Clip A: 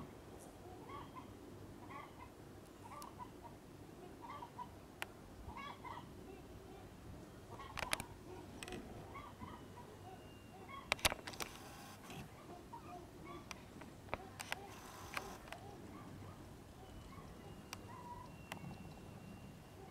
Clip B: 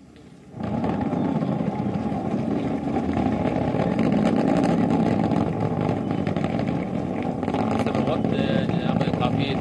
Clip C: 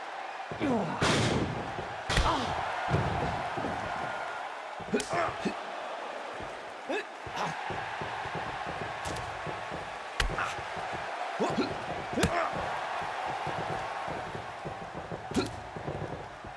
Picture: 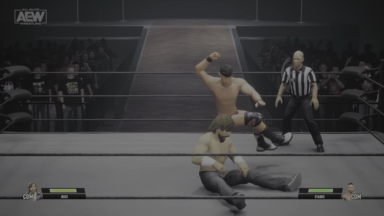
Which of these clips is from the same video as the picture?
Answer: C